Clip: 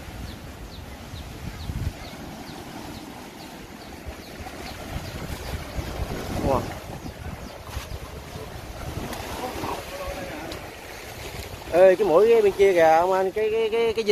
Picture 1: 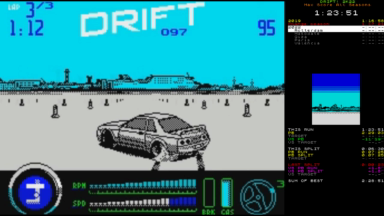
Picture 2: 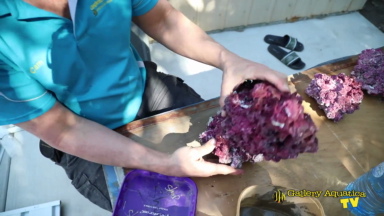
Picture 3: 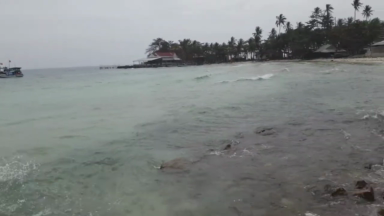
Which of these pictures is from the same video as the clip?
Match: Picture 3